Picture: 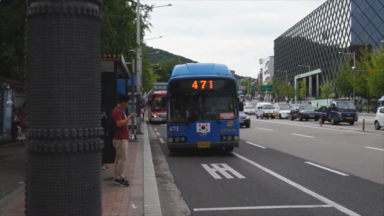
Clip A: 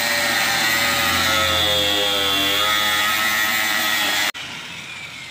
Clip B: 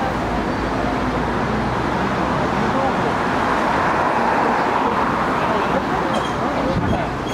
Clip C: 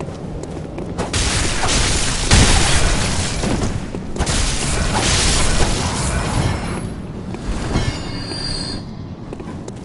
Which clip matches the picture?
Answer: B